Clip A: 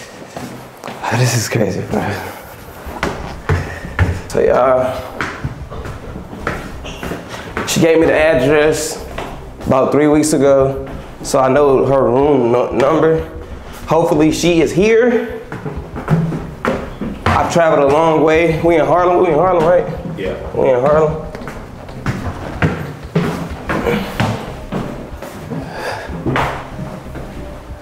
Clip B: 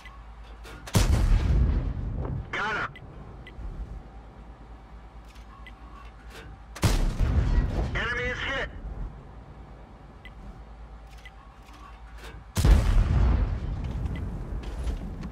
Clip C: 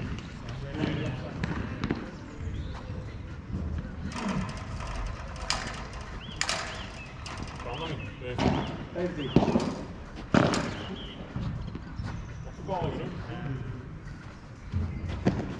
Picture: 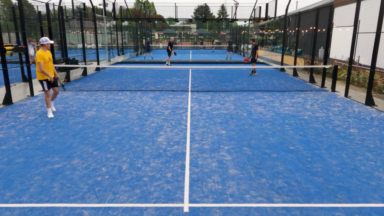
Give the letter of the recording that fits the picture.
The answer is C